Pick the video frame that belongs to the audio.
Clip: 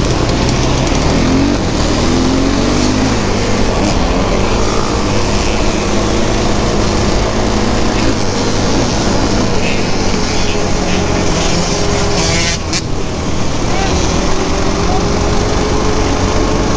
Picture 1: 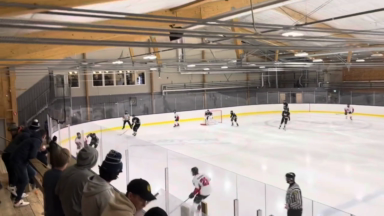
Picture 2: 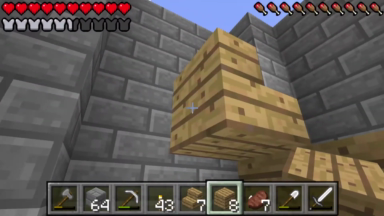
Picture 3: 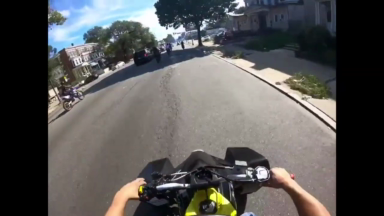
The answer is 3